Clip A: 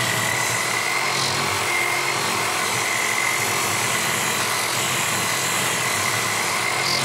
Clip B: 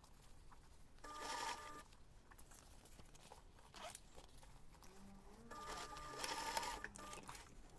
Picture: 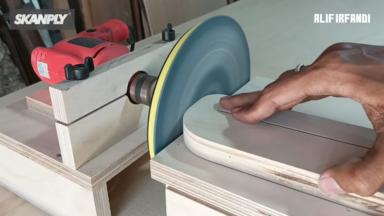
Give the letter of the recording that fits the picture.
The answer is A